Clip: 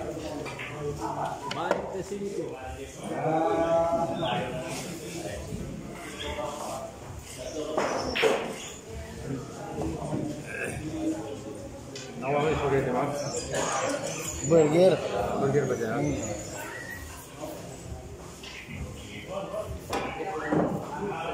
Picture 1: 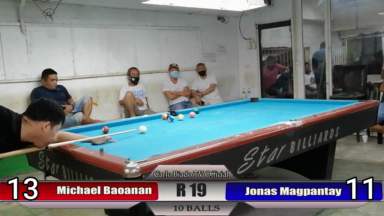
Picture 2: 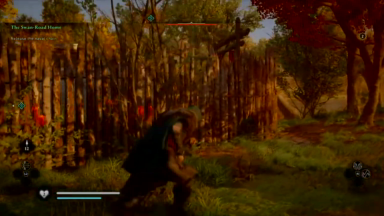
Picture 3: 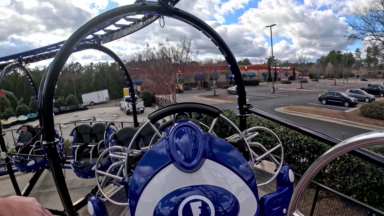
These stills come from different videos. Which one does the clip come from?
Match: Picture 1